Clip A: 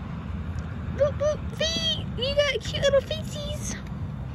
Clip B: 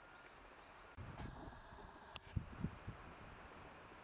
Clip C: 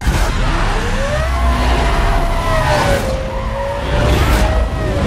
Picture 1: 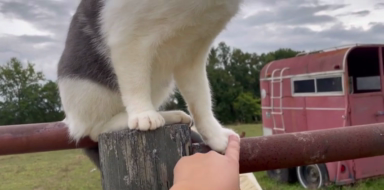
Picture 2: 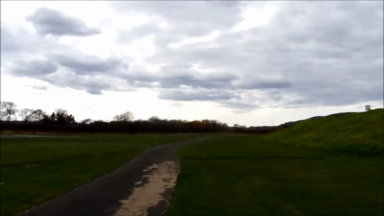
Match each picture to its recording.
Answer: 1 A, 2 B